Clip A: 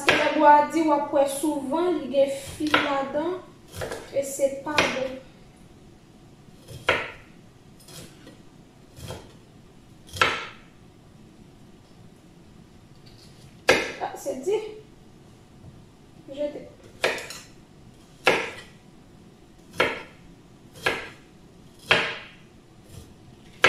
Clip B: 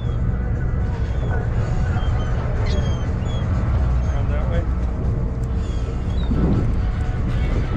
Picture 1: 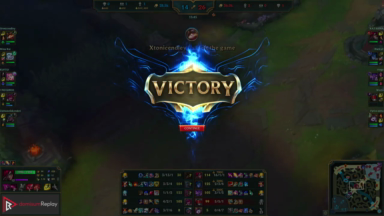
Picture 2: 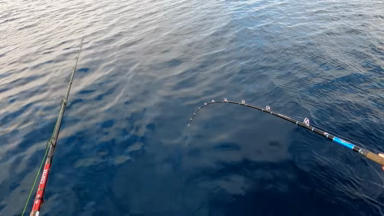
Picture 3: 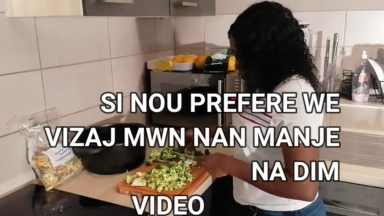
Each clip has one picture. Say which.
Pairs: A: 3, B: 2